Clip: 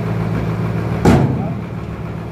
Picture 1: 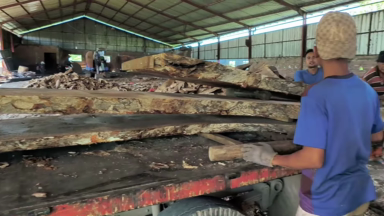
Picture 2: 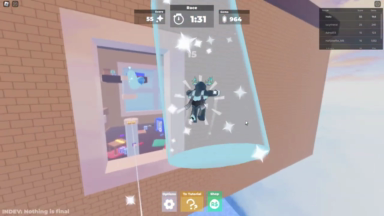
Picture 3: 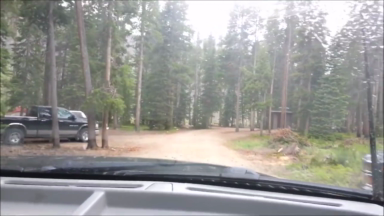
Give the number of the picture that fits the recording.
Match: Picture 1